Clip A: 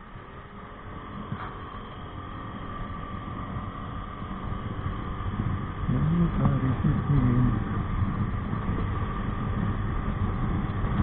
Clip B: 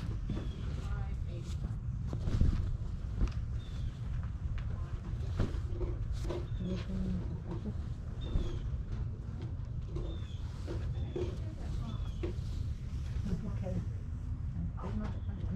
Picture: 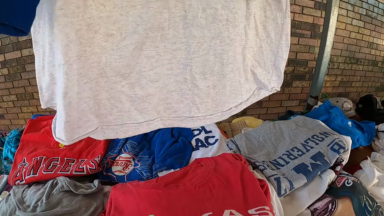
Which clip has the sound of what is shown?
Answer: B